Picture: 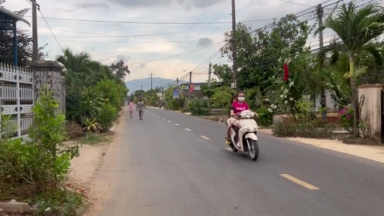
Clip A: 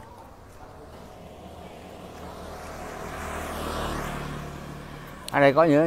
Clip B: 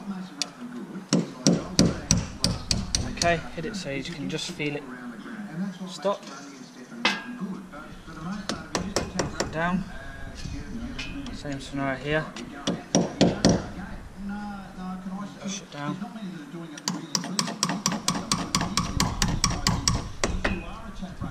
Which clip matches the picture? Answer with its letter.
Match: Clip A